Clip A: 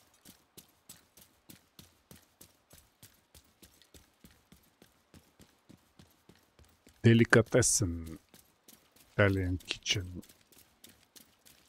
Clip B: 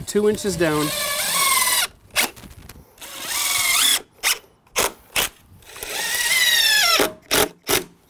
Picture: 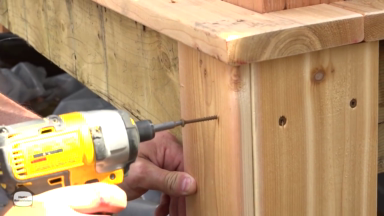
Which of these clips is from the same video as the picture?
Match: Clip B